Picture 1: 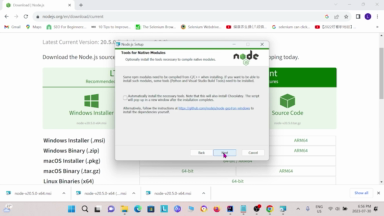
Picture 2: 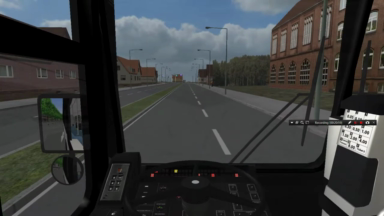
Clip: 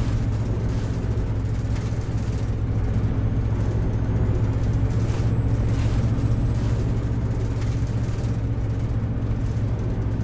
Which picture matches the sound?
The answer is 2